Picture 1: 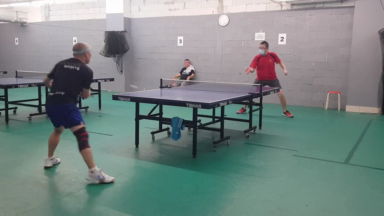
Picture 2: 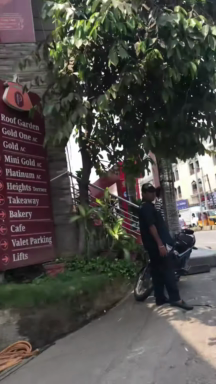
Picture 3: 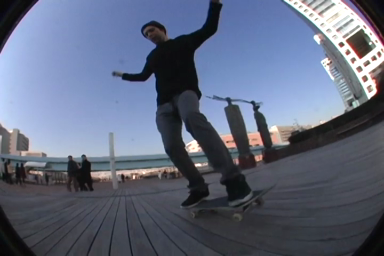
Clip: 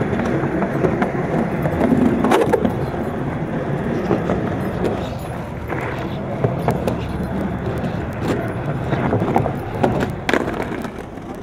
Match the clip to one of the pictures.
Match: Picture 3